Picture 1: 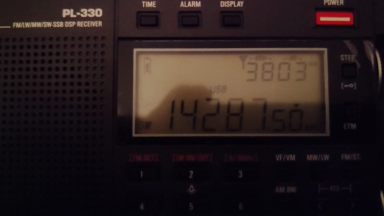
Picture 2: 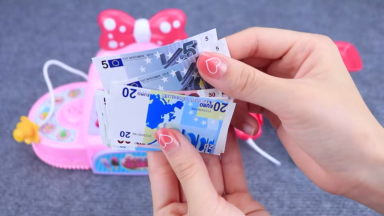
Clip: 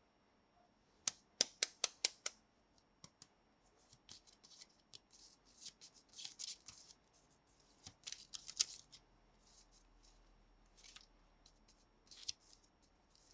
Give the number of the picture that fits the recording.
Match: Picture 2